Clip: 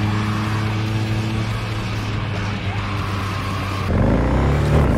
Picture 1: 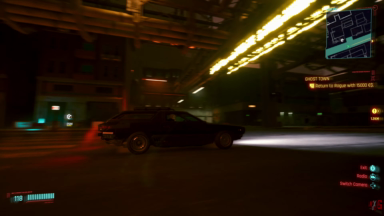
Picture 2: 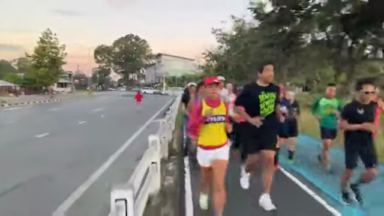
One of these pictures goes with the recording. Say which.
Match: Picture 1